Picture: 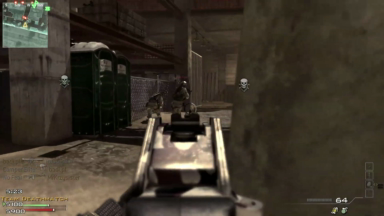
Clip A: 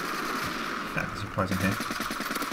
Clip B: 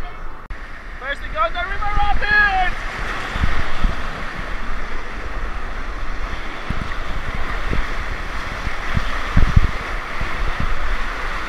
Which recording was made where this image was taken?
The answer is A